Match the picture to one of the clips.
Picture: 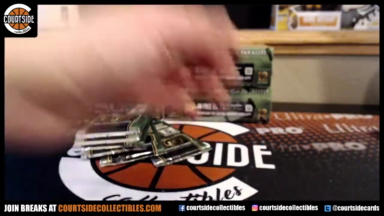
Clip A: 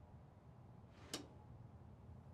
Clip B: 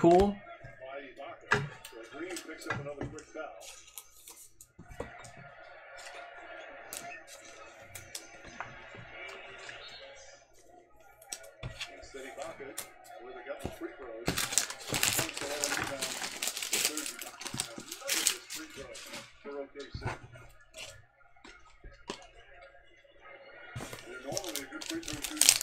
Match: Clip B